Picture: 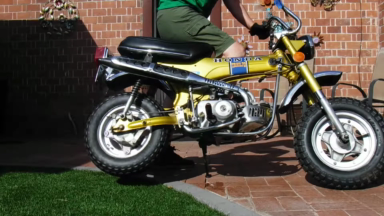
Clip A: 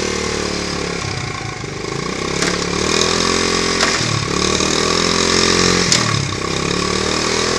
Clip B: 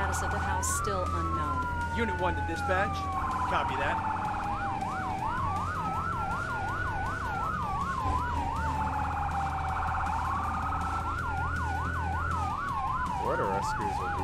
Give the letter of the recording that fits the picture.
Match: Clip A